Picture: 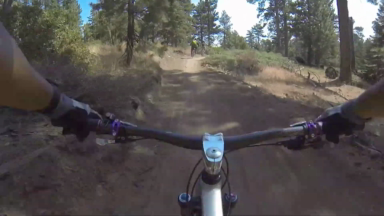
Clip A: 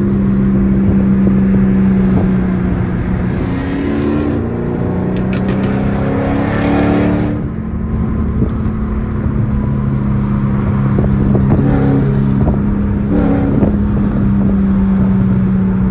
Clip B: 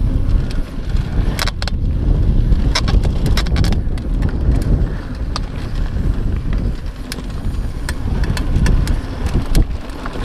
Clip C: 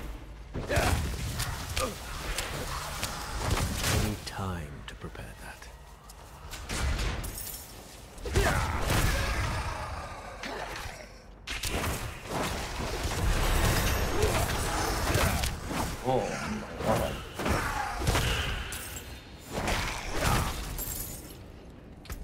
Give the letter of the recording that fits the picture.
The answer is B